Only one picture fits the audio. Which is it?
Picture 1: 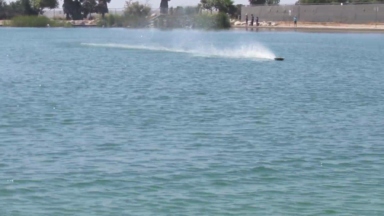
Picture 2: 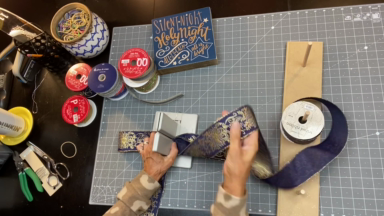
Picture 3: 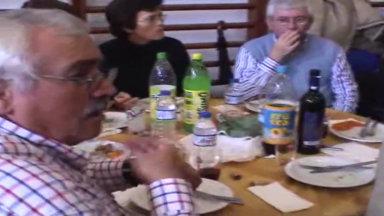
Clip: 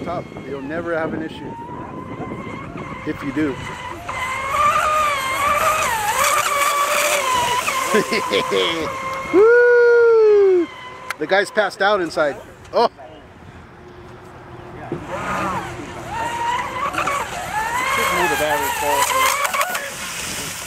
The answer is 1